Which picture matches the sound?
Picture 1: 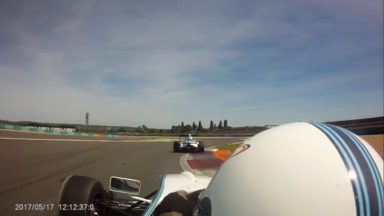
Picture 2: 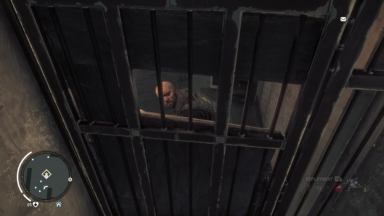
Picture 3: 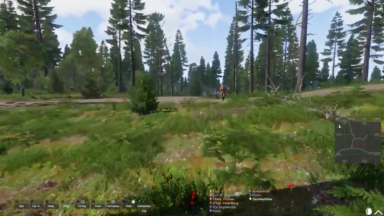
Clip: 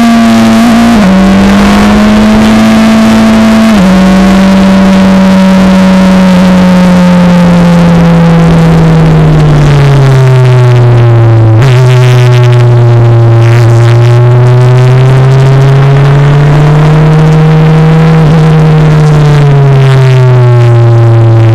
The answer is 1